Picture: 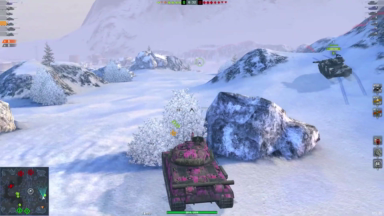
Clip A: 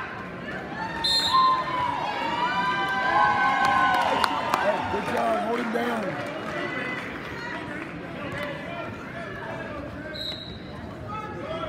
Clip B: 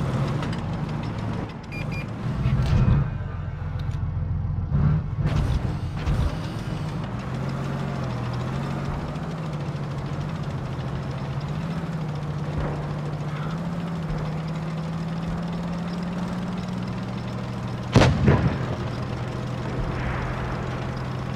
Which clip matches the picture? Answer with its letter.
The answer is B